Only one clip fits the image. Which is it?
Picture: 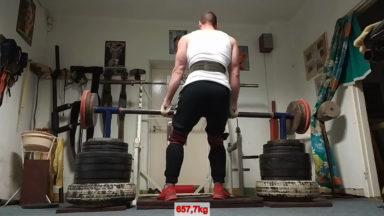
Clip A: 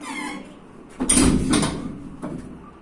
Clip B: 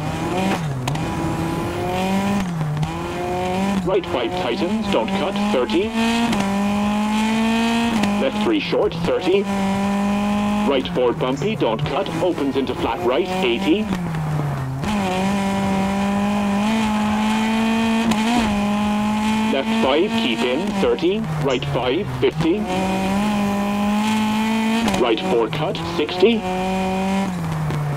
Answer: A